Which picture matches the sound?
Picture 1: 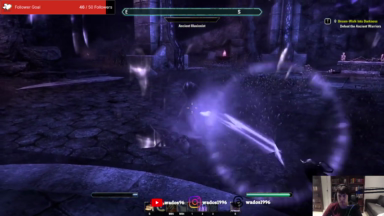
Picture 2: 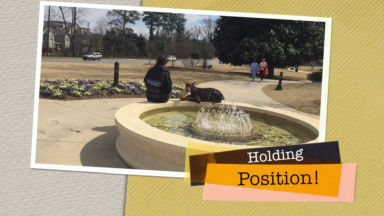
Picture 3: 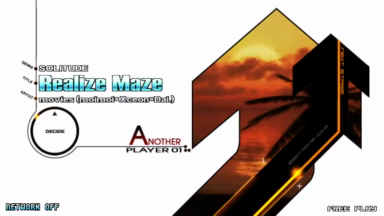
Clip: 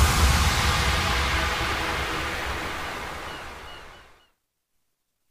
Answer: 3